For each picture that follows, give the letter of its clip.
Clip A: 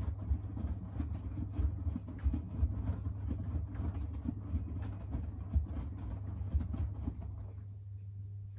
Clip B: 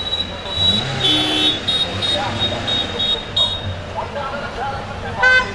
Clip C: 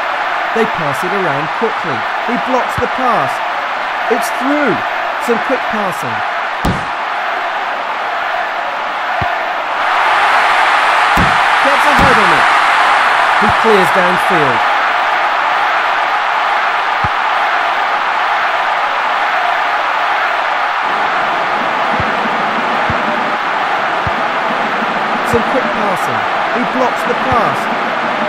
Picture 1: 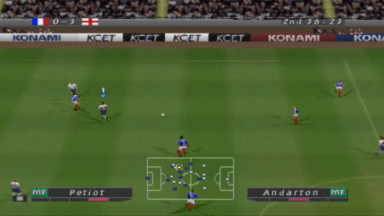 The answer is C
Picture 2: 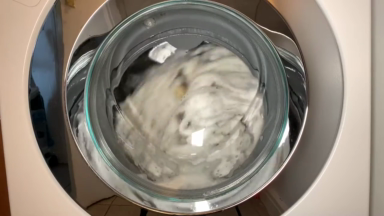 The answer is A